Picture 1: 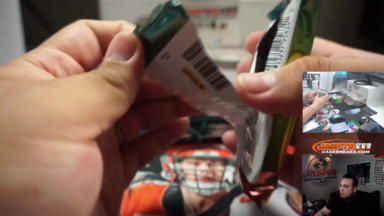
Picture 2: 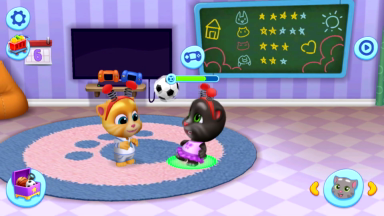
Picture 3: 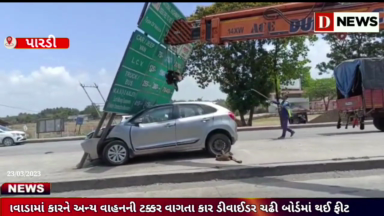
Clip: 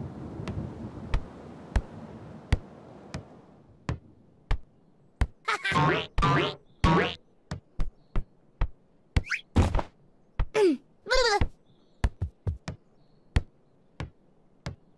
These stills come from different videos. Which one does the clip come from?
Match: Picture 2